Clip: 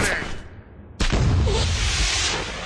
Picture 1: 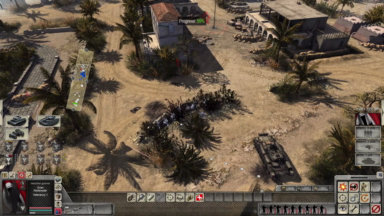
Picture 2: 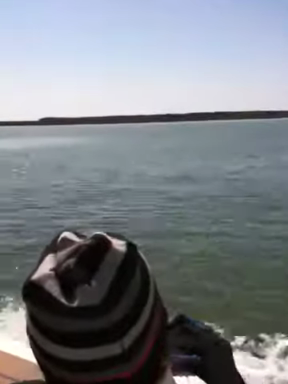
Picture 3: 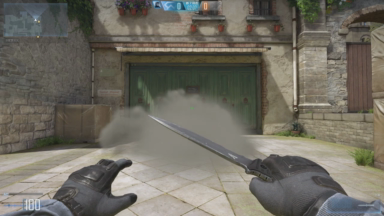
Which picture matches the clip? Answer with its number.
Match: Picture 3